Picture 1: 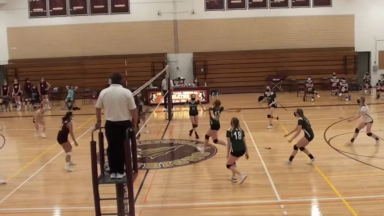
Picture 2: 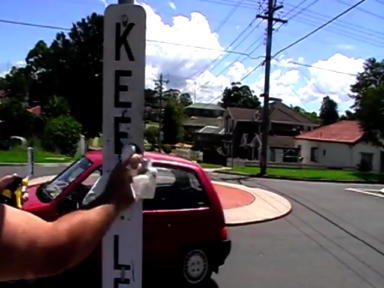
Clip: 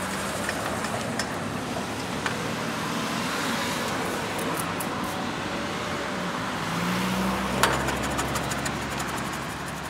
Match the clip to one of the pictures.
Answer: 2